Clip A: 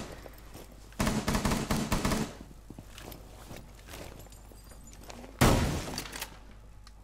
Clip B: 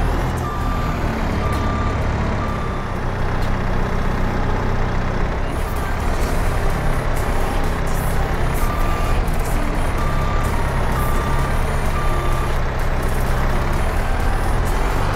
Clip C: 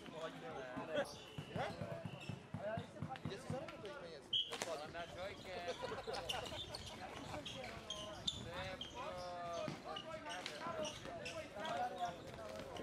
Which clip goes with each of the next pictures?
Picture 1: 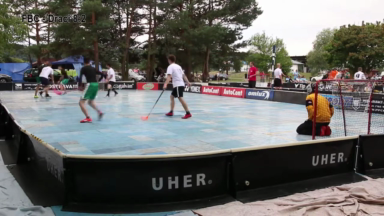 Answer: C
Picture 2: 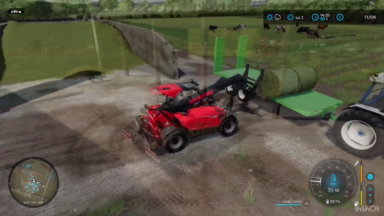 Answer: B